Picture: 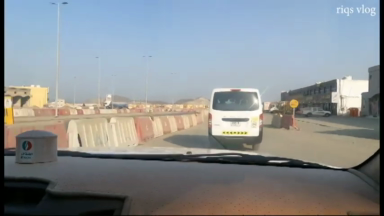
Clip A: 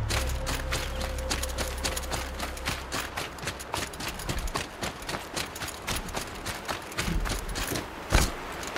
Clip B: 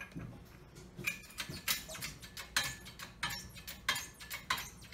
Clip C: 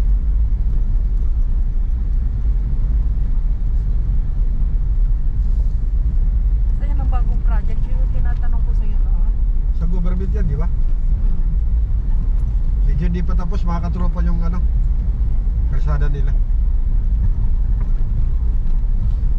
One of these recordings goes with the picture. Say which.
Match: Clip C